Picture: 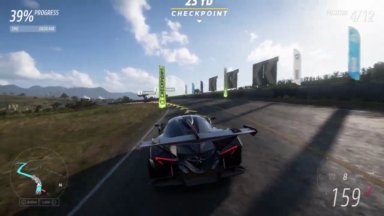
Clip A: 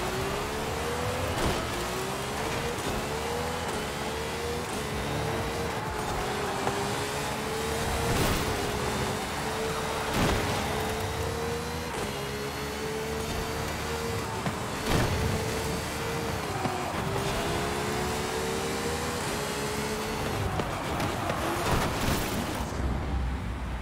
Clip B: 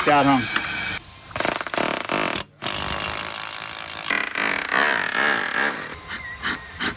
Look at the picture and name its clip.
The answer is A